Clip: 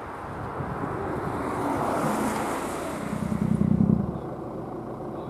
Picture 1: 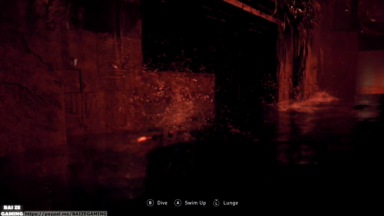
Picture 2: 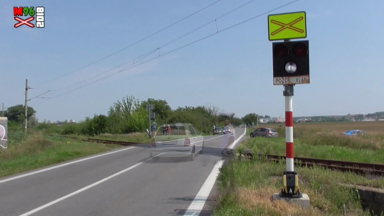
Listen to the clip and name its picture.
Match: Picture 2